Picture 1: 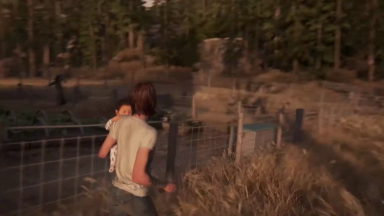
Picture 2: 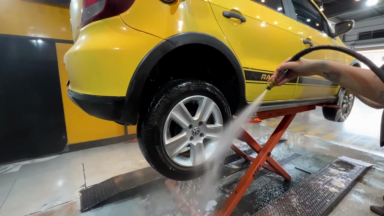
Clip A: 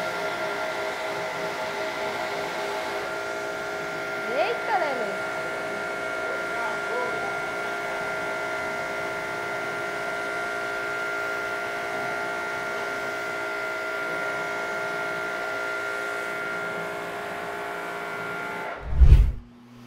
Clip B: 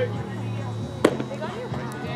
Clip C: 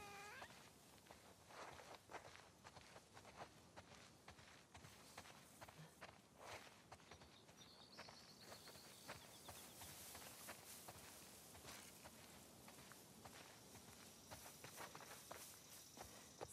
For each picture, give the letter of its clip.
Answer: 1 C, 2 A